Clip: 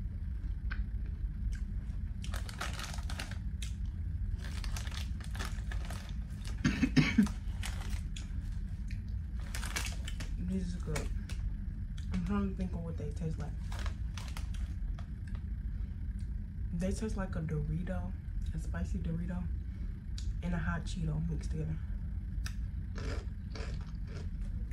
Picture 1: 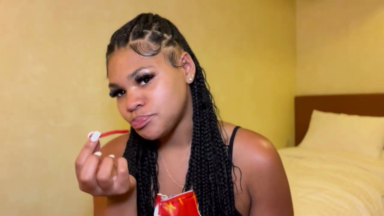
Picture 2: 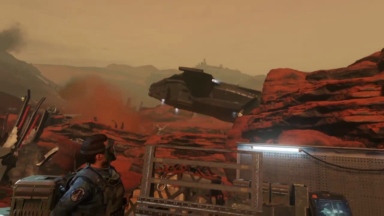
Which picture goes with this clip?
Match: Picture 1